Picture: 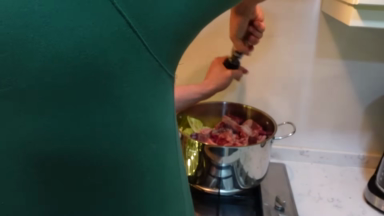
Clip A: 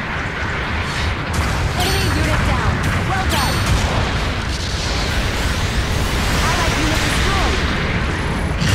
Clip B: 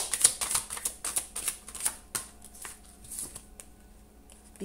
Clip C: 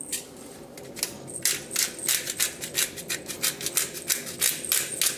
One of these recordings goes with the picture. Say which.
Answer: C